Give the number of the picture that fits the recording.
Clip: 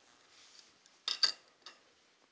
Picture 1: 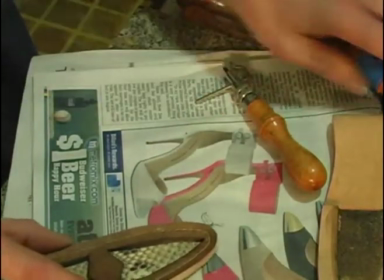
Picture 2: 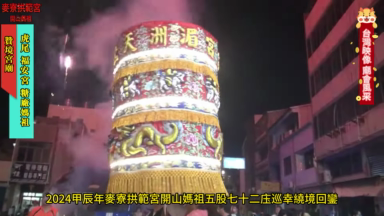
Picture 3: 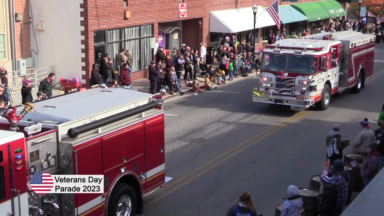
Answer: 1